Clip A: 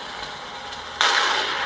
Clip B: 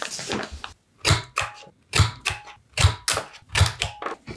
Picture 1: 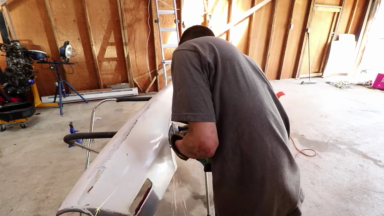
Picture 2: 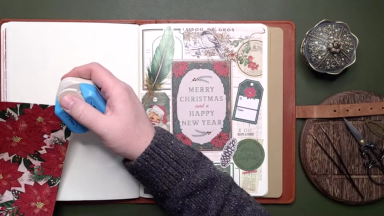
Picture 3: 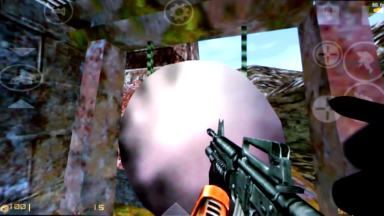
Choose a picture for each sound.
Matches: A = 3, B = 2